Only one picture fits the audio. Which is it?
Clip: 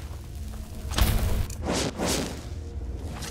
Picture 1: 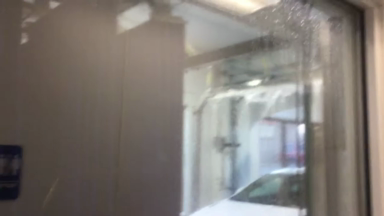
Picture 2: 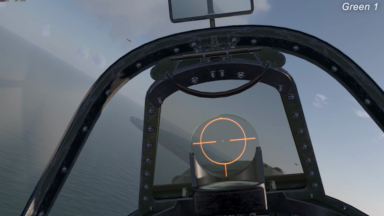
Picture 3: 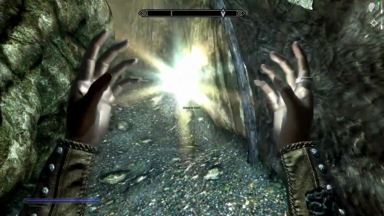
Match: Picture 3